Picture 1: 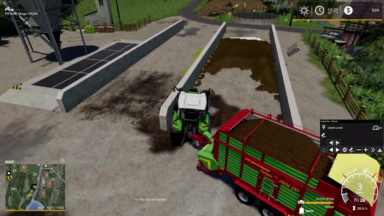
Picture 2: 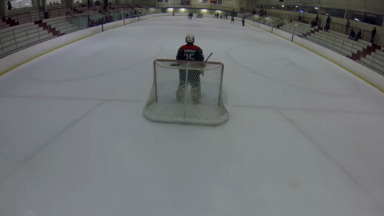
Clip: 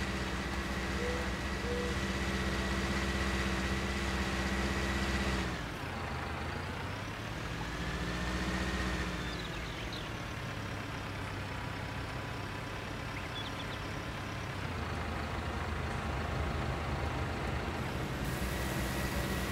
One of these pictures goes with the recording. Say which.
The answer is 1